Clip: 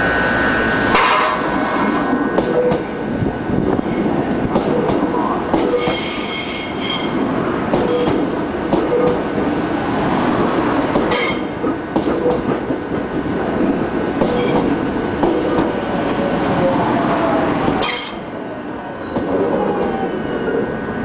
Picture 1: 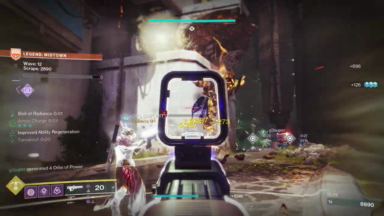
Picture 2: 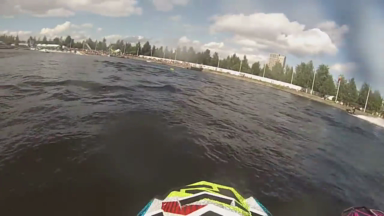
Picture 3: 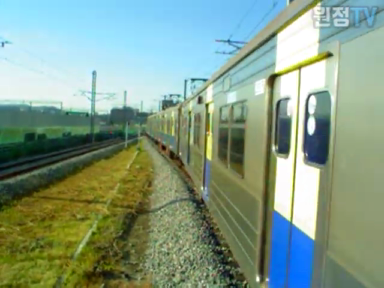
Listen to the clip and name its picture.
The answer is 3